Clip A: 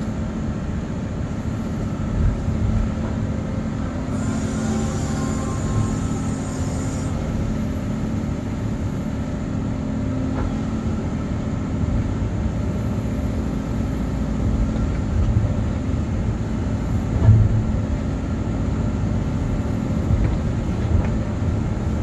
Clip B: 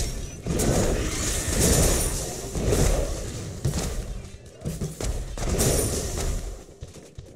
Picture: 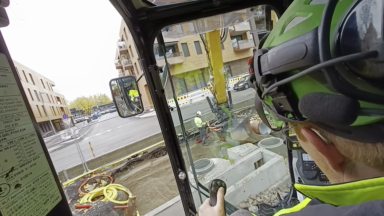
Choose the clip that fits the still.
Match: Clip A